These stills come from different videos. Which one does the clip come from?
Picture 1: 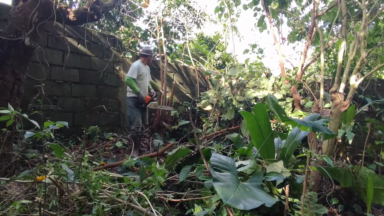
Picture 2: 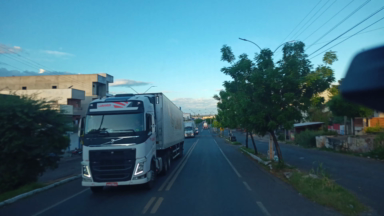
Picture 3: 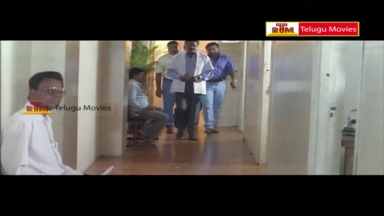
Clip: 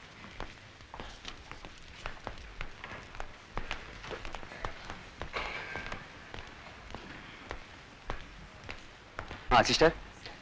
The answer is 3